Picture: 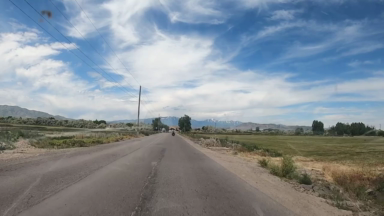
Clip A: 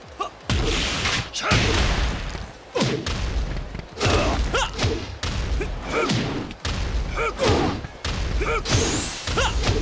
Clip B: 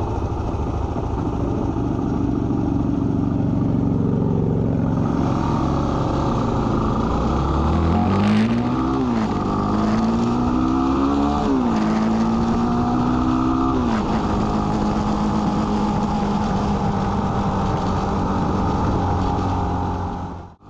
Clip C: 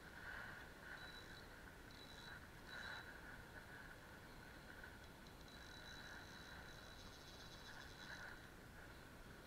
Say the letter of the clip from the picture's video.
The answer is B